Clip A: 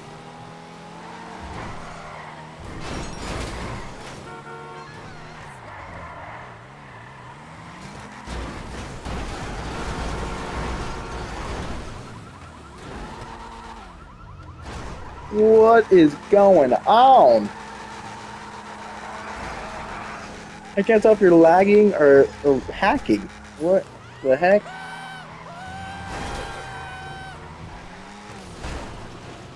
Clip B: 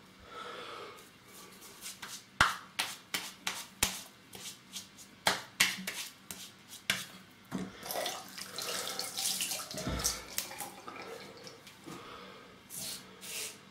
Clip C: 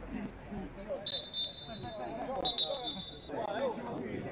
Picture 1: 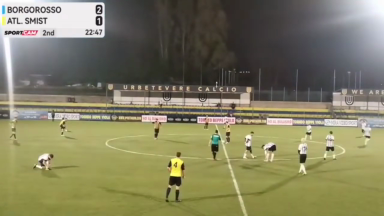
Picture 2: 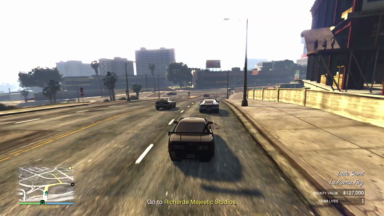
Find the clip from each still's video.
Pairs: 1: C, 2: A